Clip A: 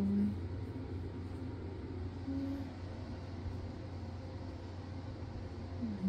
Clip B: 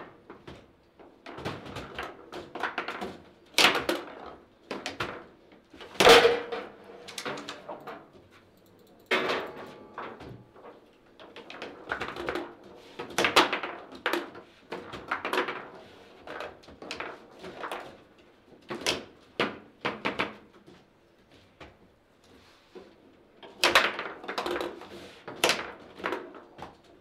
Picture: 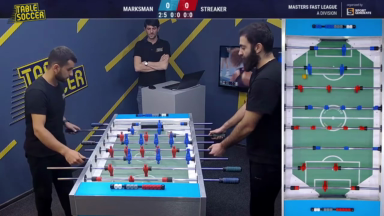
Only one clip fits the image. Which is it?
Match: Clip B